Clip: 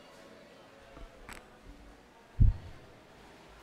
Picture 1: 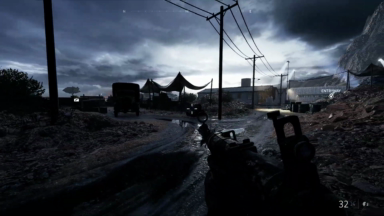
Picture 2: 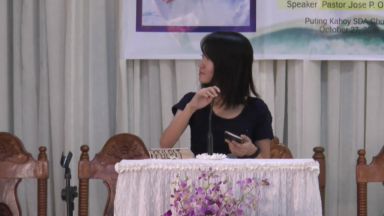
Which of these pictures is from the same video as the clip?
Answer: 2